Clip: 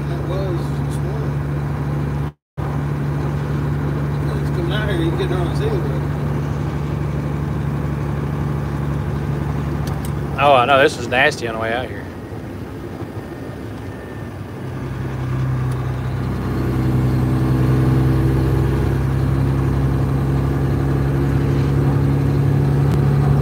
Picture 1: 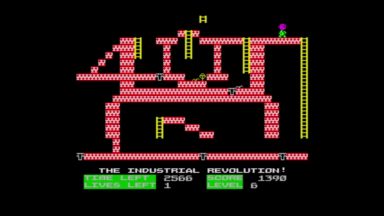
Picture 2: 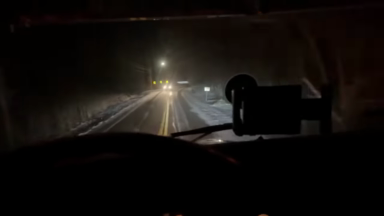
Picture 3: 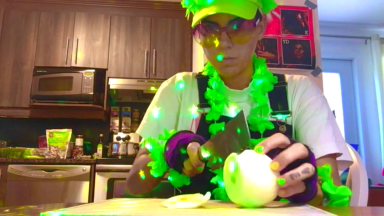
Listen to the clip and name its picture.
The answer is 2